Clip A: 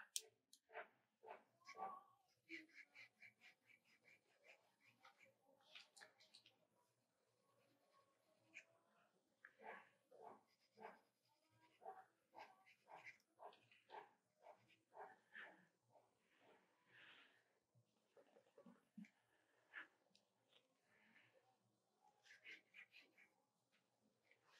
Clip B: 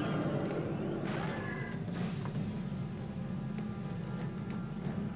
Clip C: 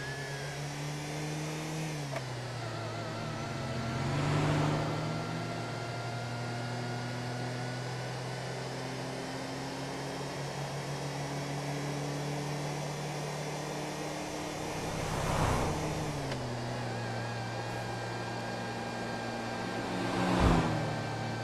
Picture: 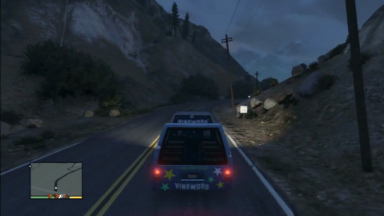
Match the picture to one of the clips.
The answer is C